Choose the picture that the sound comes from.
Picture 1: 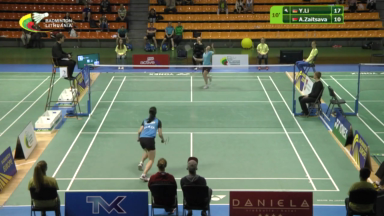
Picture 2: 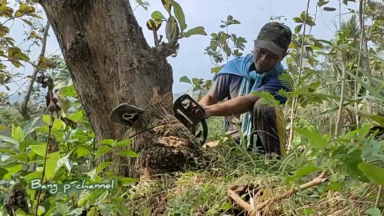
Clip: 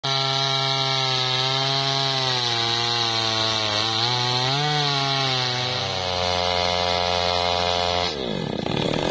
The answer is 2